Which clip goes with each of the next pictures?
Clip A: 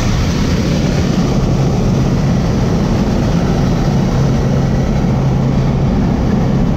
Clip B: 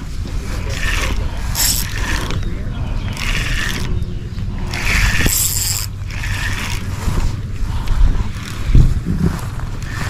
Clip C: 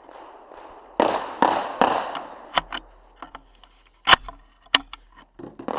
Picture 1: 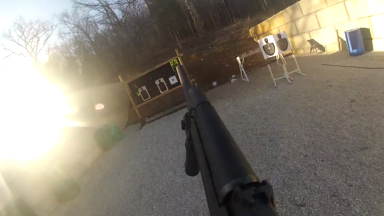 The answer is C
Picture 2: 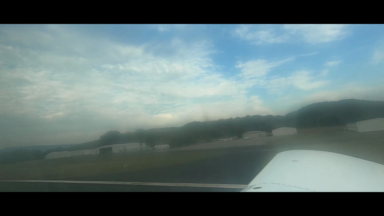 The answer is A